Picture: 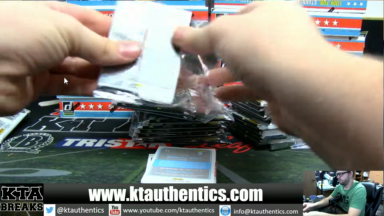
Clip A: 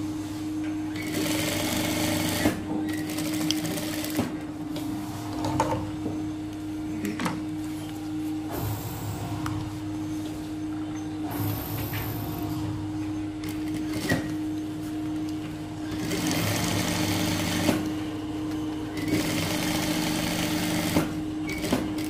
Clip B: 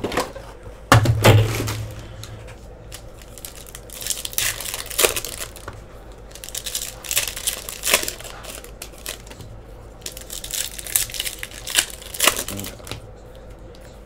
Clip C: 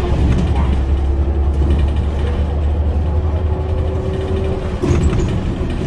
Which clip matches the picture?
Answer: B